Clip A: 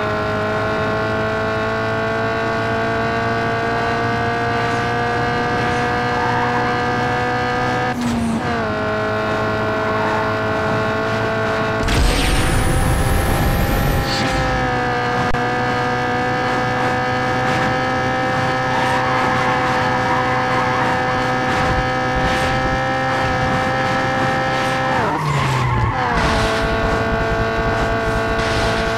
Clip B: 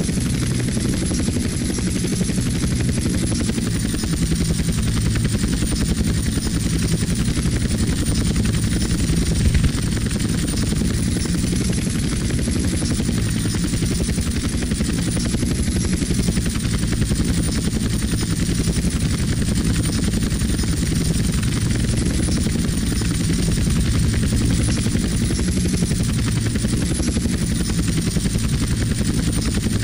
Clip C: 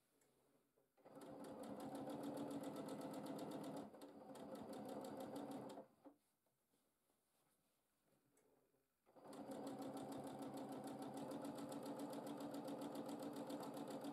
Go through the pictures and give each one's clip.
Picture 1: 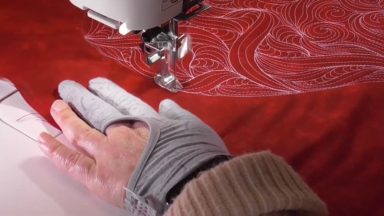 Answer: C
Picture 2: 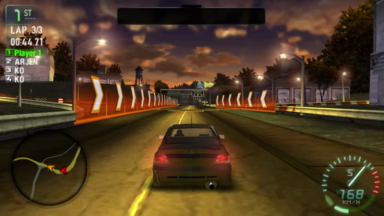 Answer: A